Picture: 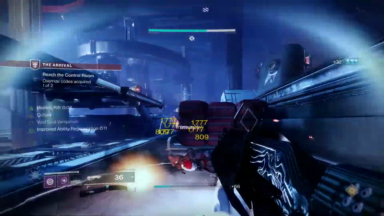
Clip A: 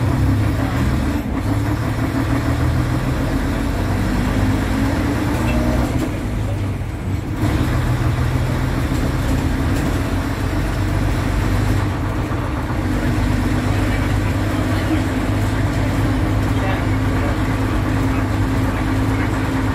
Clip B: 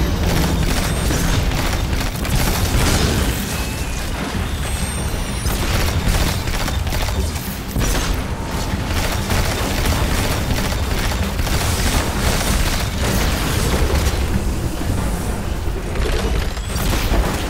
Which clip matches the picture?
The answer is B